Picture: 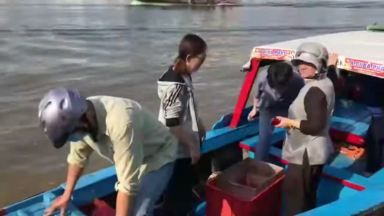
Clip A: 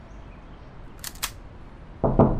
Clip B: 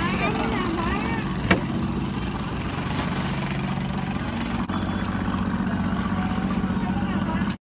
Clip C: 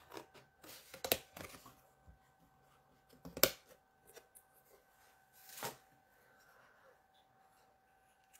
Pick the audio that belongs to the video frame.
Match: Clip B